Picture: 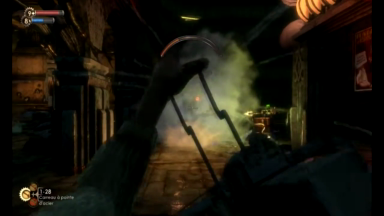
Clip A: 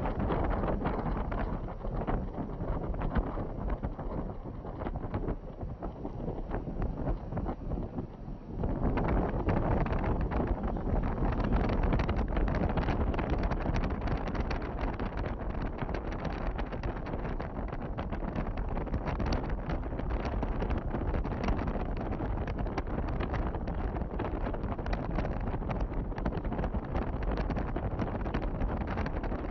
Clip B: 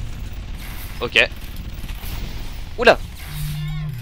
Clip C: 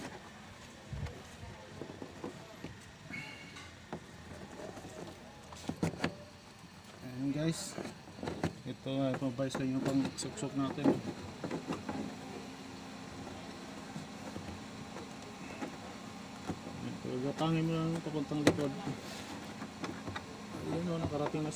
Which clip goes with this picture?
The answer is B